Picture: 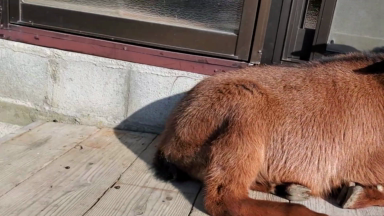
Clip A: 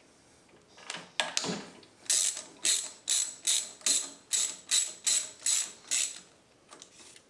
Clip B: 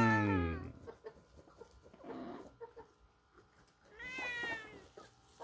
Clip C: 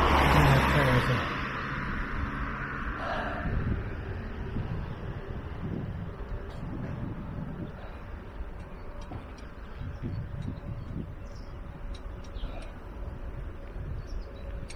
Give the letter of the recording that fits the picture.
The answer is B